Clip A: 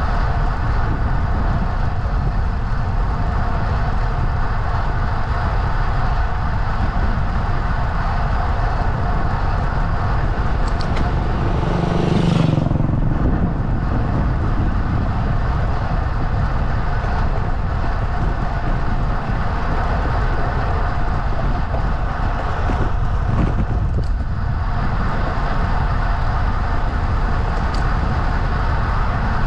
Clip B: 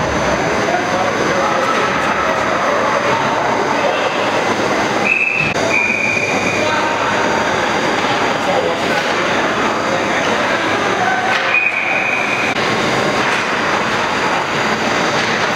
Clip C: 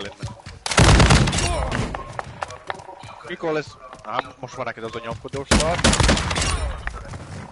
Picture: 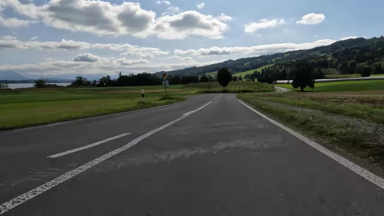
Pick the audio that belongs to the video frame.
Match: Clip A